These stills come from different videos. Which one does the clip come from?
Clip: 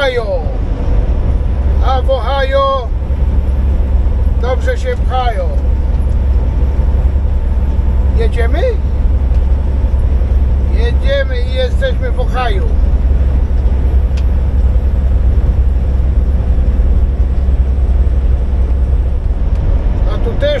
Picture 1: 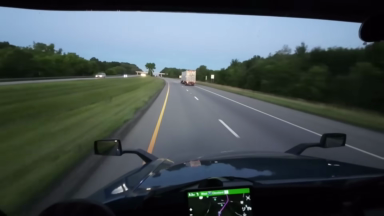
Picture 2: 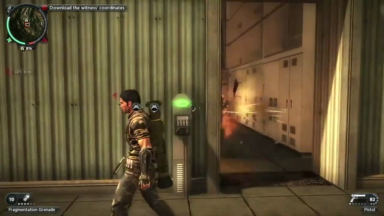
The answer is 1